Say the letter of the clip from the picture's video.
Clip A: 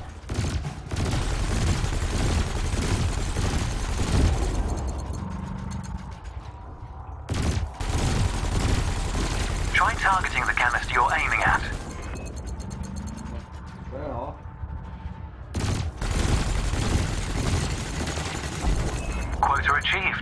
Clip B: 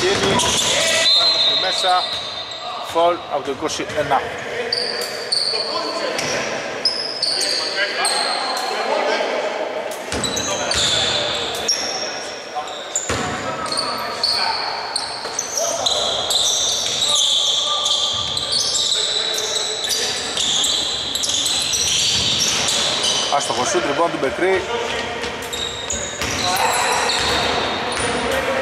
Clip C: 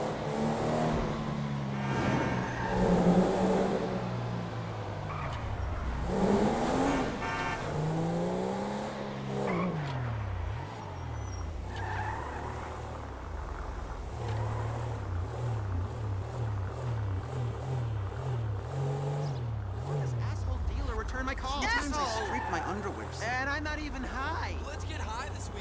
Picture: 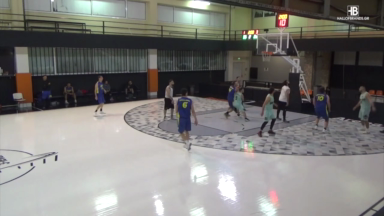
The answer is B